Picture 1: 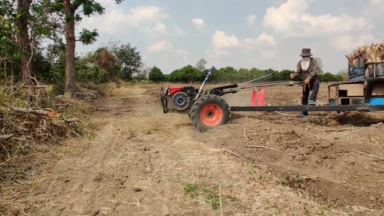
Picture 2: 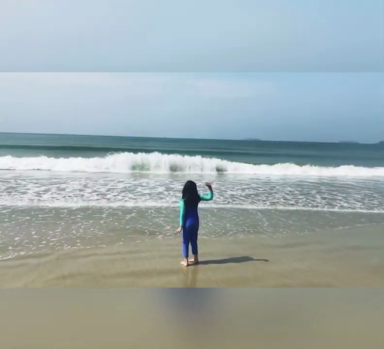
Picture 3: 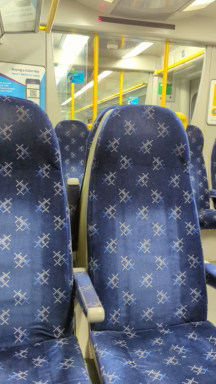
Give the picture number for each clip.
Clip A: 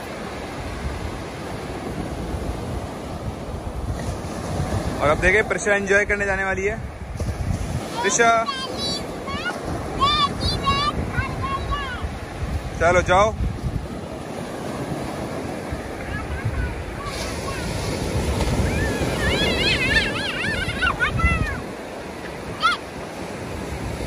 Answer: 2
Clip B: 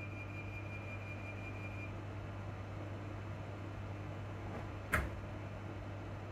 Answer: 3